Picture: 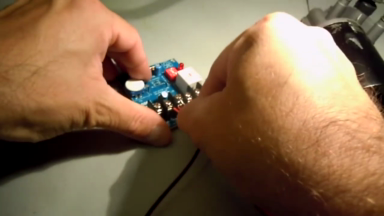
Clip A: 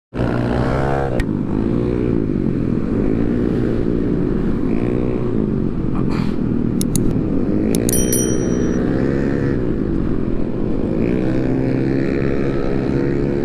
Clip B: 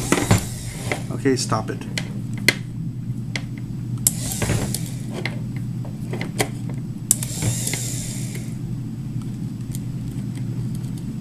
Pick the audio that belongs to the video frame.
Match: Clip B